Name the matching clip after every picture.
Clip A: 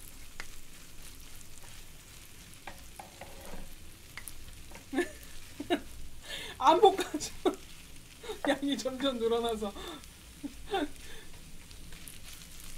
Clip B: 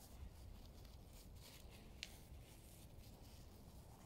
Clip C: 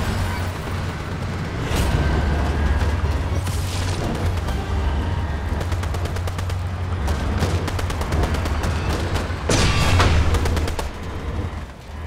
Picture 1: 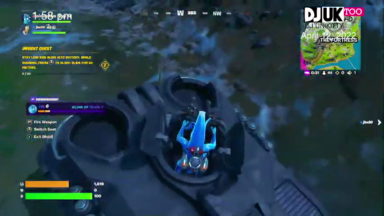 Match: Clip C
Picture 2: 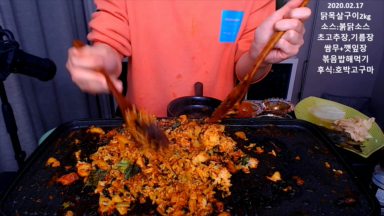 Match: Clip A